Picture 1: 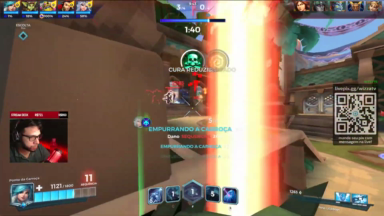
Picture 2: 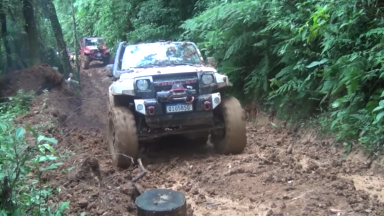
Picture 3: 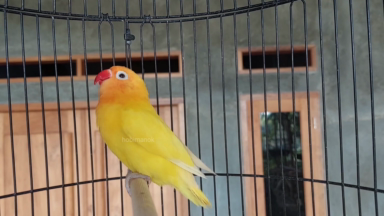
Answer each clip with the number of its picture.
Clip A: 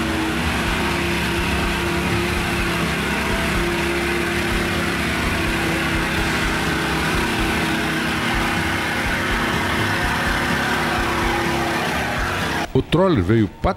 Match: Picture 2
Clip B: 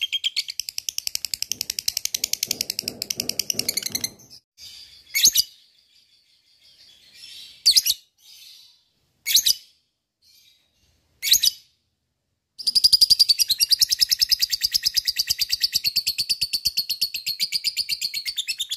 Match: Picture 3